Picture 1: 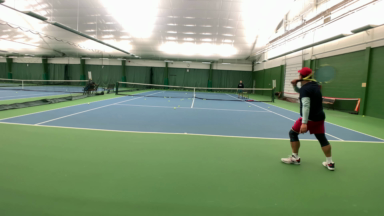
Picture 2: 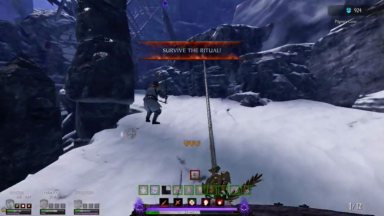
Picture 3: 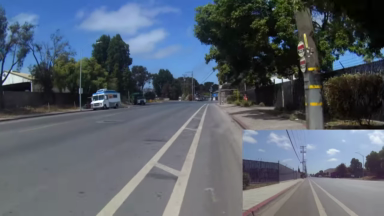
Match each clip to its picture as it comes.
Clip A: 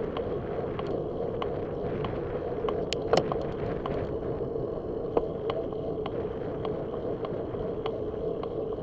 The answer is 3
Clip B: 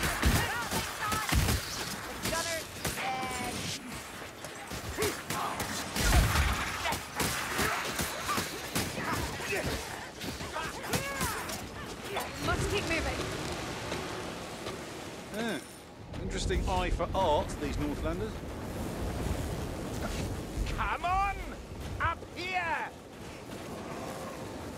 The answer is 2